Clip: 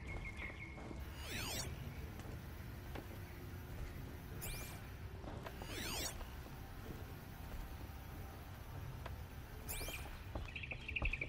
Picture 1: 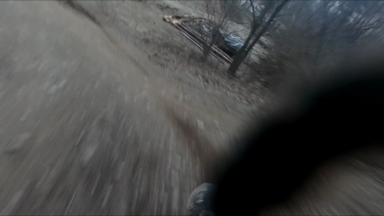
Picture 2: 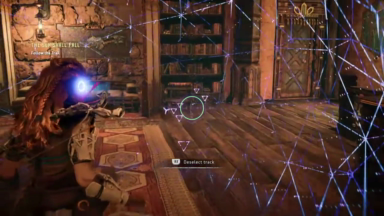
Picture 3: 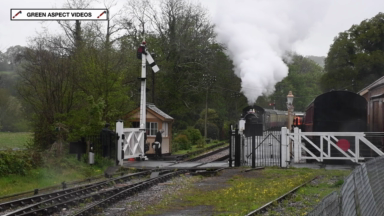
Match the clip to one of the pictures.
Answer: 2